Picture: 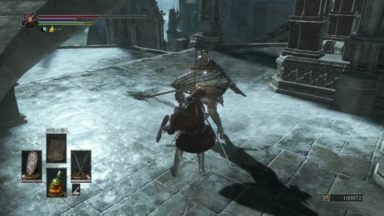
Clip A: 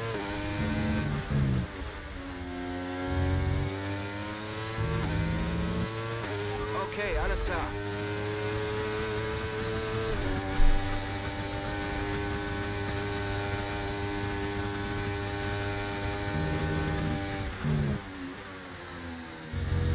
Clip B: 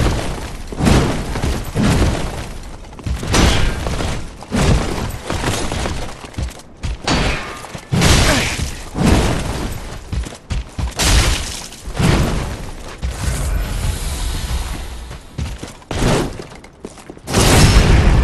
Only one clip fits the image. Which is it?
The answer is B